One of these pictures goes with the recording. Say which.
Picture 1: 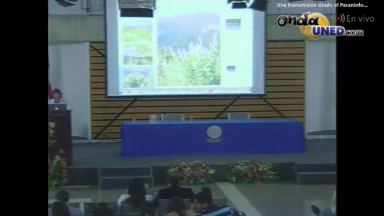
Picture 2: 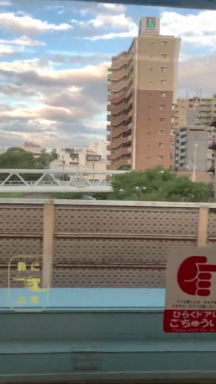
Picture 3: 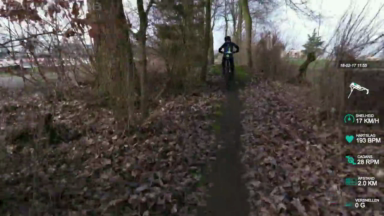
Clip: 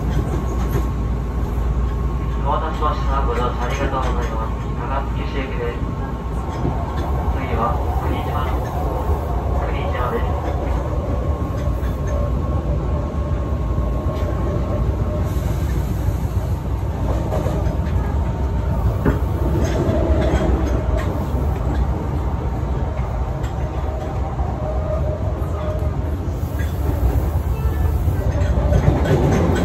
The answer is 2